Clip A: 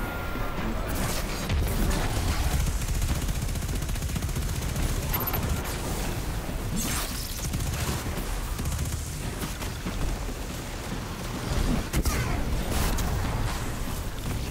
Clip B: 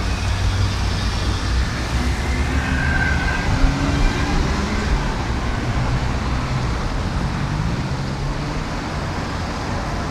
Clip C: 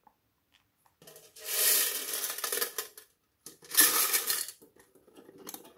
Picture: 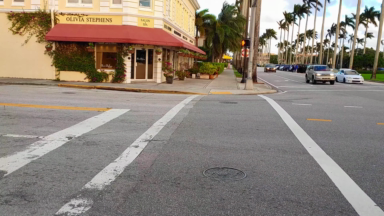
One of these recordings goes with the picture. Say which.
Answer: B